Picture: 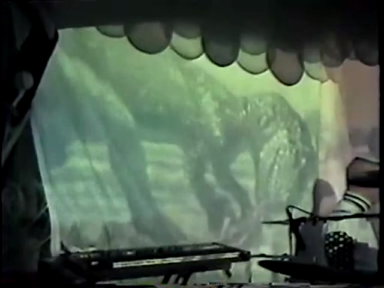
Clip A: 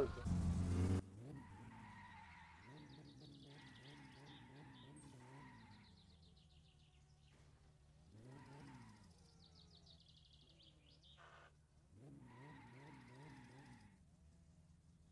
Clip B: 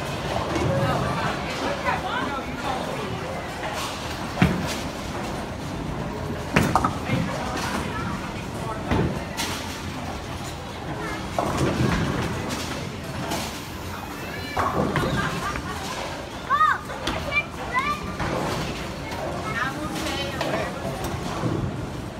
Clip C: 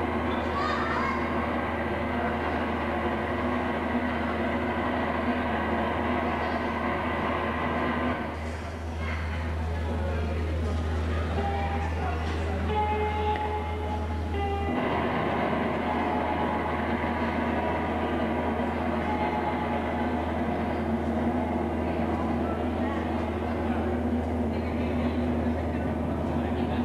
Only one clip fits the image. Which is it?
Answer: C